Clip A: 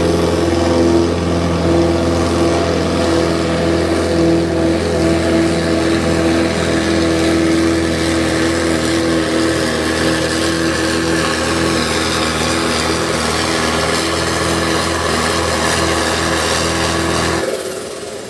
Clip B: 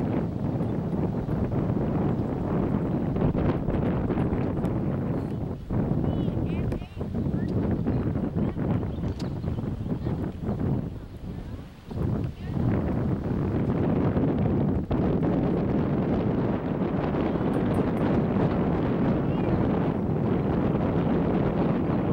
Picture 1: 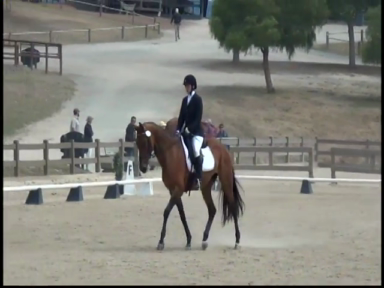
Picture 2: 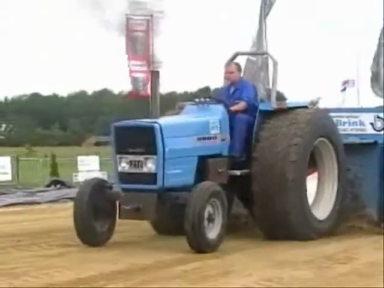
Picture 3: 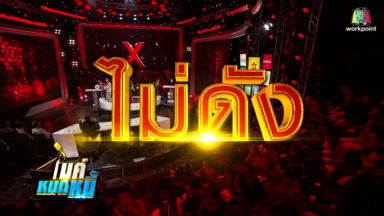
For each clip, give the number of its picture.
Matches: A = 2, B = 1